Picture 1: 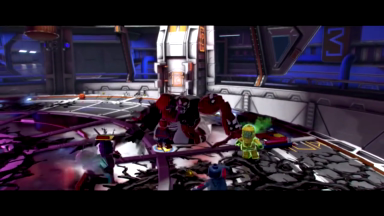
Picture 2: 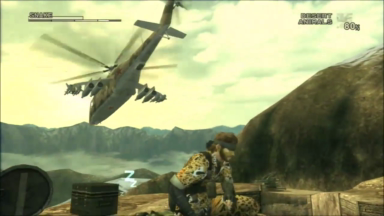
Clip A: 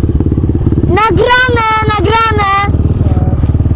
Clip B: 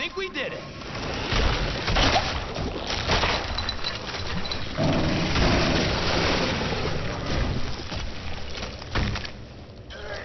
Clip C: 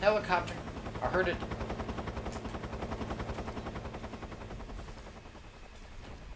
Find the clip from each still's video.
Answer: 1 B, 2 C